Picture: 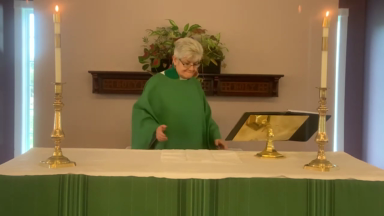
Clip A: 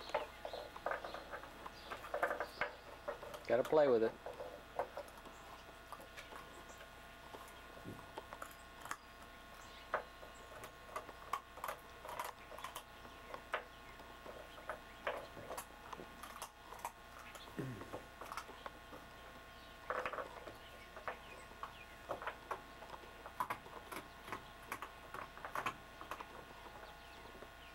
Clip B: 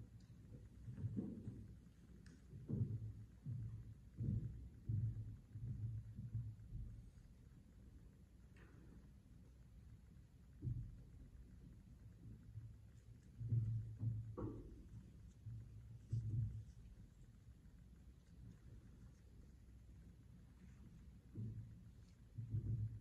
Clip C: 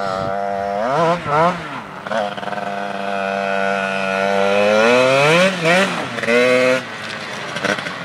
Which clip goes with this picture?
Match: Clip B